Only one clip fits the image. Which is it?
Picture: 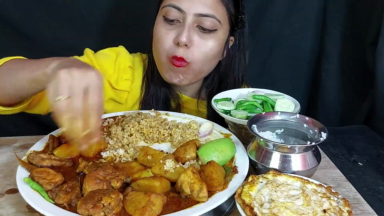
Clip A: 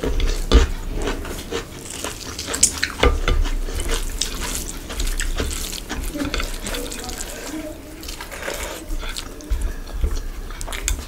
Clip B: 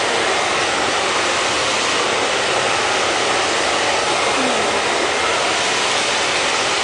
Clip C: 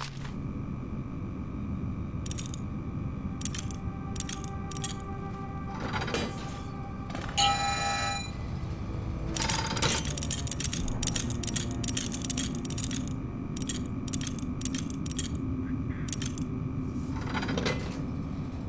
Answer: A